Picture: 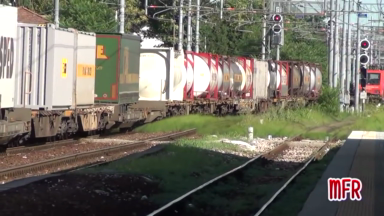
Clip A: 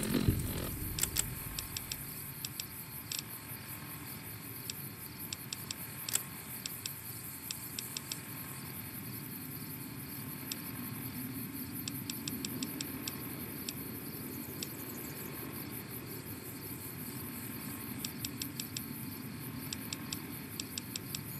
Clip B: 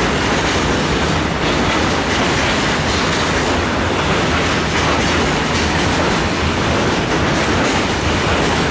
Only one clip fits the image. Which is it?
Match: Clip B